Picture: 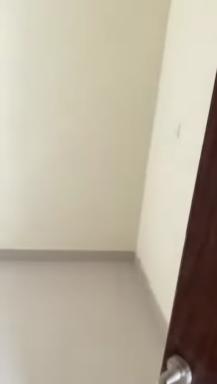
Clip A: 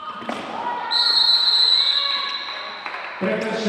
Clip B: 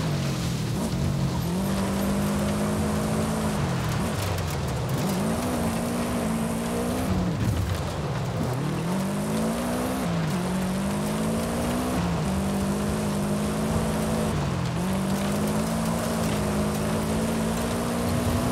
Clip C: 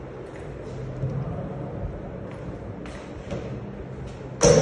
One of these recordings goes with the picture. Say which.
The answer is C